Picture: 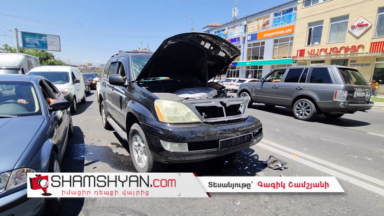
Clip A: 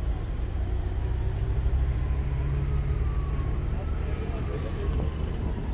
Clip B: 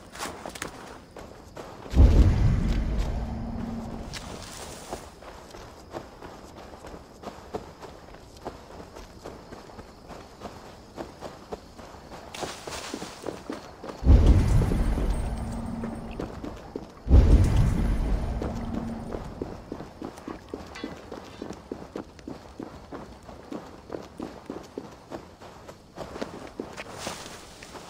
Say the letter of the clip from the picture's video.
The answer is A